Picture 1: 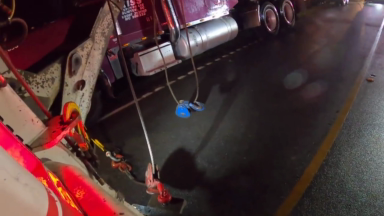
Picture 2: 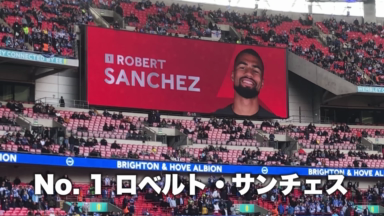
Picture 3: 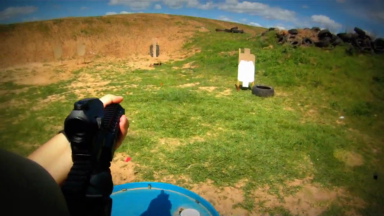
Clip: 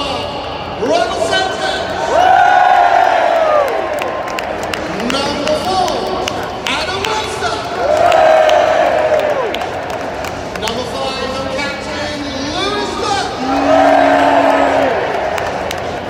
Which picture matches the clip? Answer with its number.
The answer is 2